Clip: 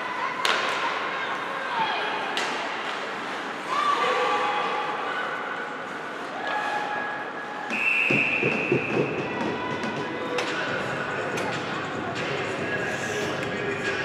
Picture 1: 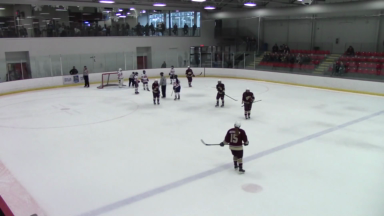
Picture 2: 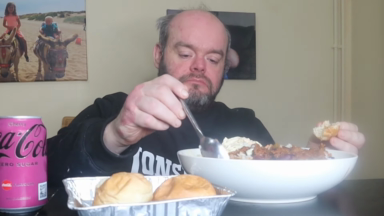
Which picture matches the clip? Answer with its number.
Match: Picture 1